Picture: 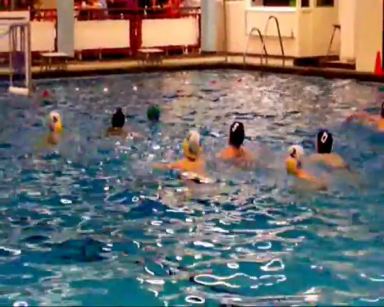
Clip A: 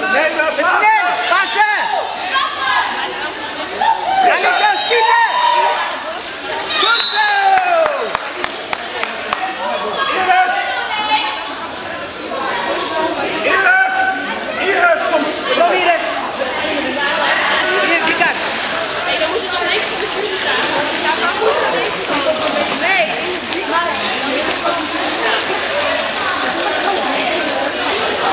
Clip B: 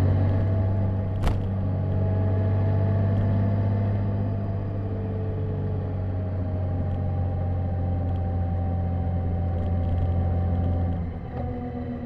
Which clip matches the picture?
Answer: A